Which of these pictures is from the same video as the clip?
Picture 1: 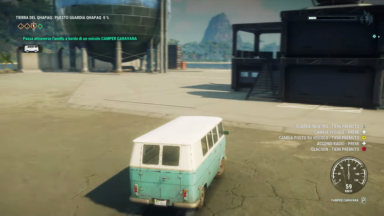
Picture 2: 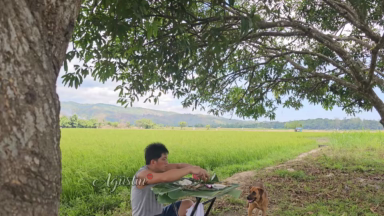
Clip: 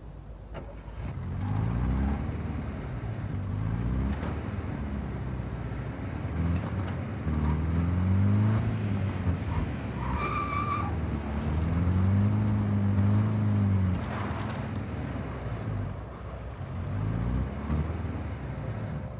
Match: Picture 1